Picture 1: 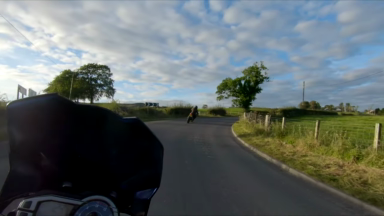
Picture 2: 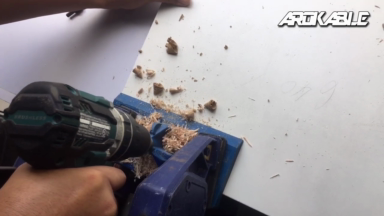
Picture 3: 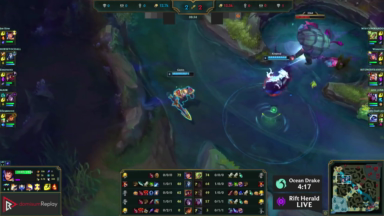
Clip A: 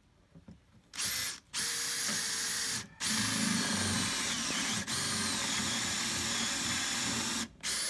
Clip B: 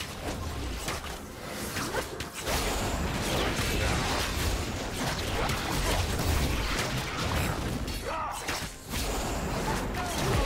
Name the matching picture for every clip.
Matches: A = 2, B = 3